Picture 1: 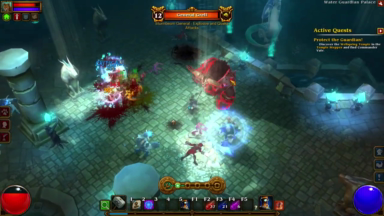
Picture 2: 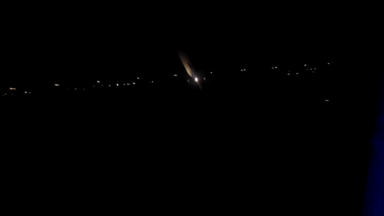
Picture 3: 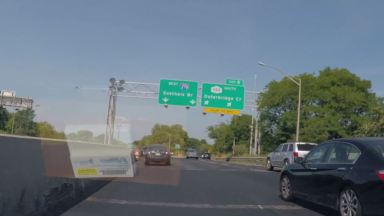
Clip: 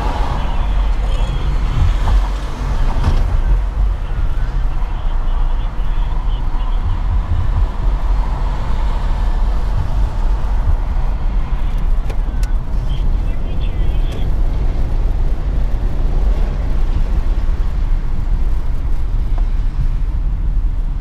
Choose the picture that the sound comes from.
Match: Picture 3